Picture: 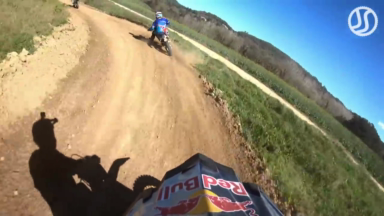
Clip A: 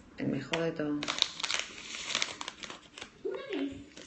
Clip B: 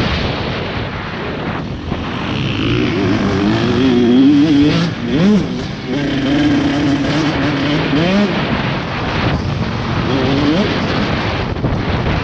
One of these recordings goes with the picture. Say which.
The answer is B